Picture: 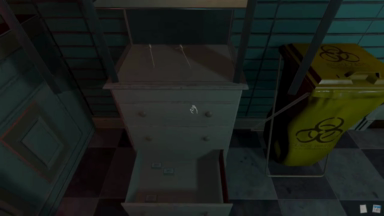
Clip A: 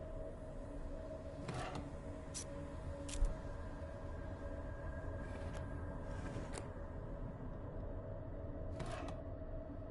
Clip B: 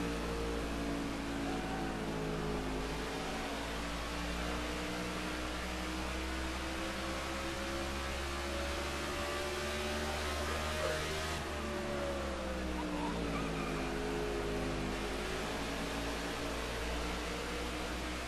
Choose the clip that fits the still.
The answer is A